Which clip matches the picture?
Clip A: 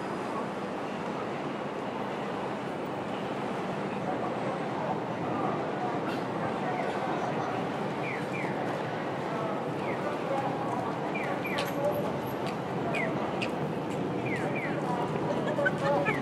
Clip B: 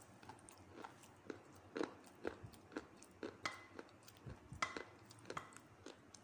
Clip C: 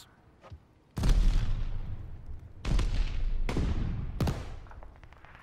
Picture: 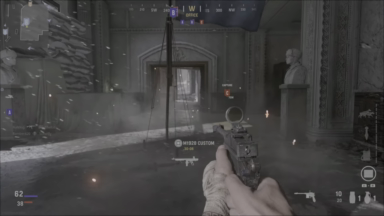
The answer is C